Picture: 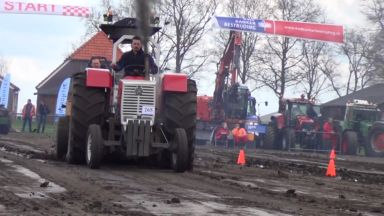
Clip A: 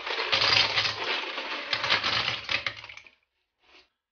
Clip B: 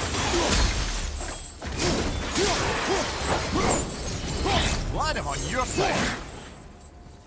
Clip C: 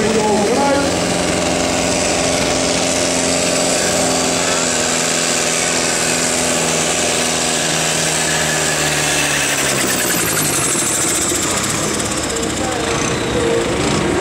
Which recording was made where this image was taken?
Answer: C